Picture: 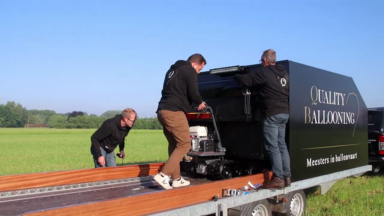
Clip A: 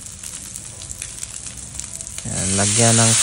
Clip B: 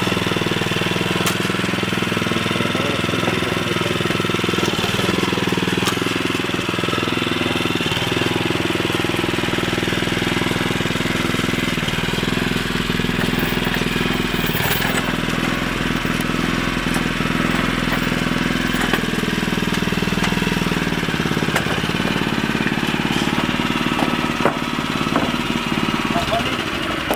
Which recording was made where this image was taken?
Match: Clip B